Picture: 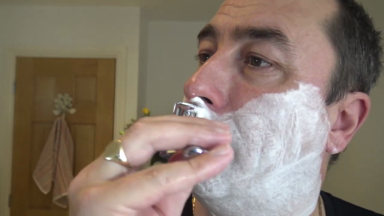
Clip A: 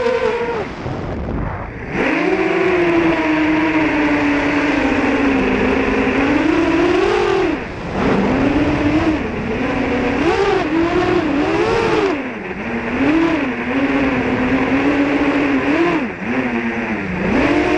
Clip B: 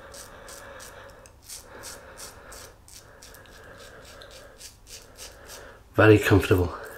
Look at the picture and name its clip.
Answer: B